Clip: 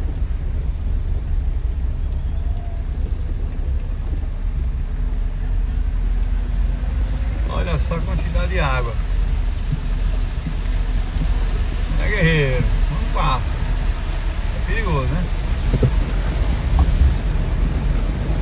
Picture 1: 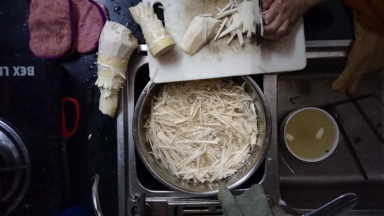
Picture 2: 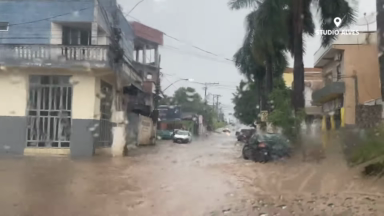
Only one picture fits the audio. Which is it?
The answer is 2